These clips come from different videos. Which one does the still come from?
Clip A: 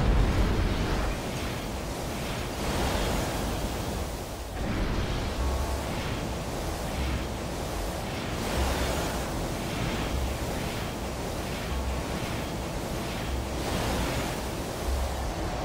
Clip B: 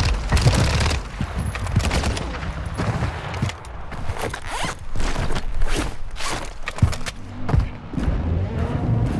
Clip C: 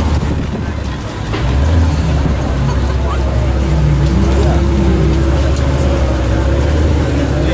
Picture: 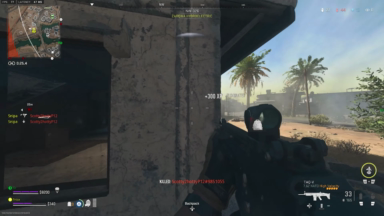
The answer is B